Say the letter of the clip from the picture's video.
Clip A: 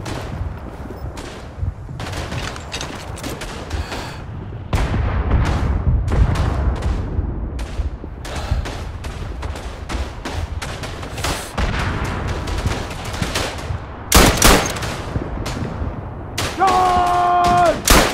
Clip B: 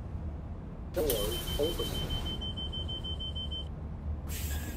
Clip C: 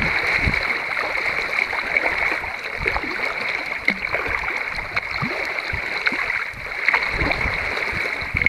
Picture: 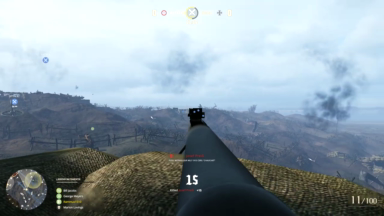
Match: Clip A